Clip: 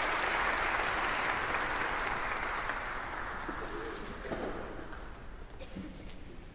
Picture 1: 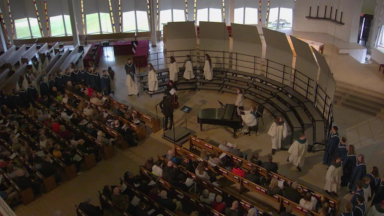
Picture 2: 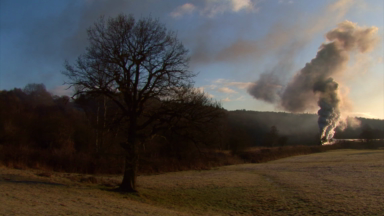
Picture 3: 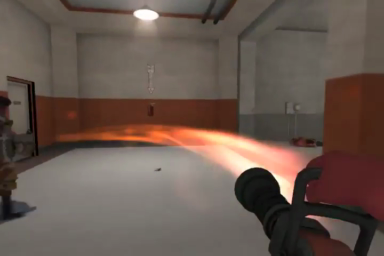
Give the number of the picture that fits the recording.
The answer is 1